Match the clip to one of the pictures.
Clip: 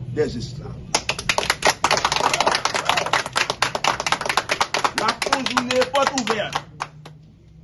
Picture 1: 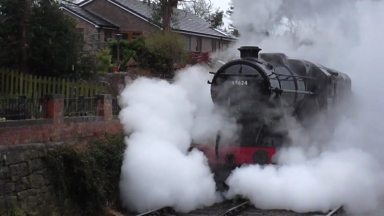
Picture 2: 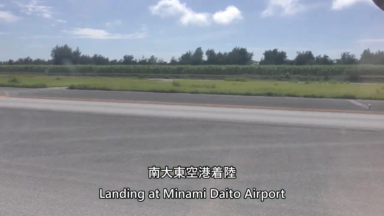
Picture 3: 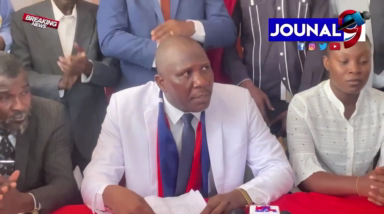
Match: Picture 3